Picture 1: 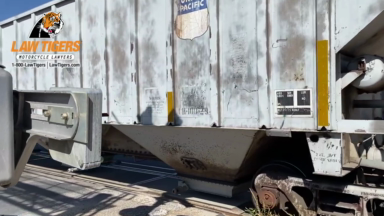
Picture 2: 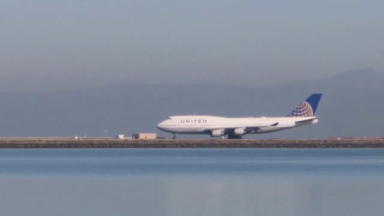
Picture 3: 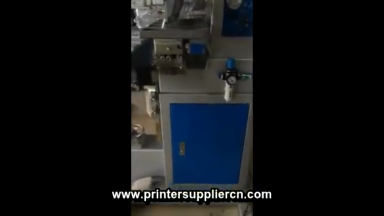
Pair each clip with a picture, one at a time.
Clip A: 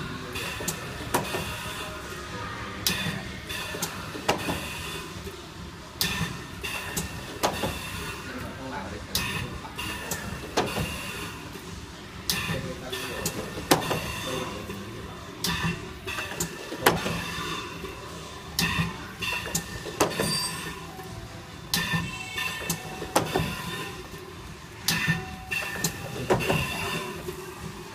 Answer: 3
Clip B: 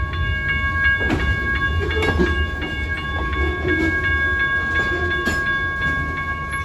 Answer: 1